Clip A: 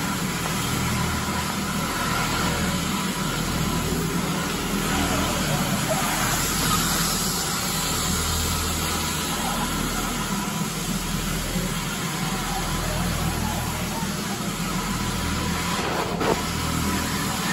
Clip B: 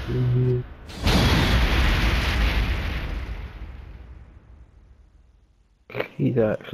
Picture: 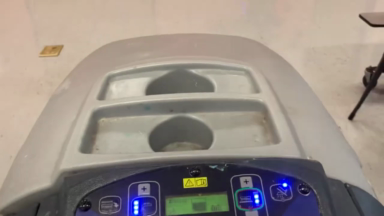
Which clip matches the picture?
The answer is A